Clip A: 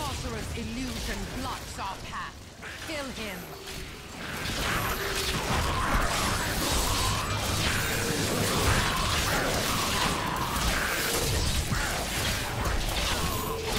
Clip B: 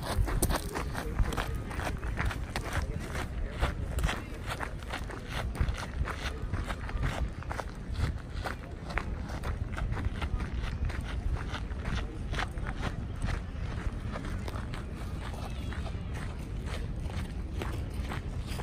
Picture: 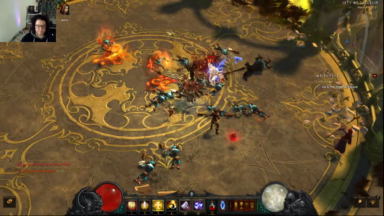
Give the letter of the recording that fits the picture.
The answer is A